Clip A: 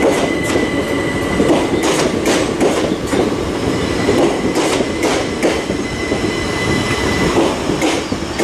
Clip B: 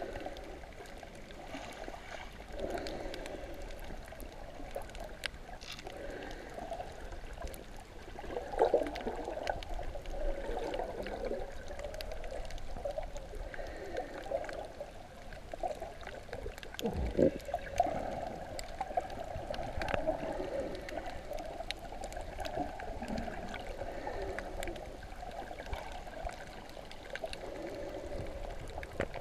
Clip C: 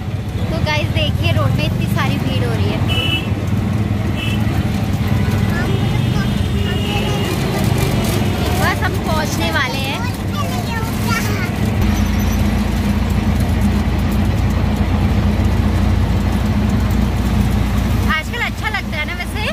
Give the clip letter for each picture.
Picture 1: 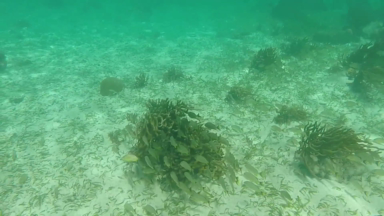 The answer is B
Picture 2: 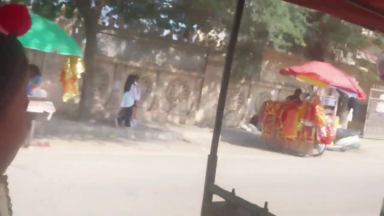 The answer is C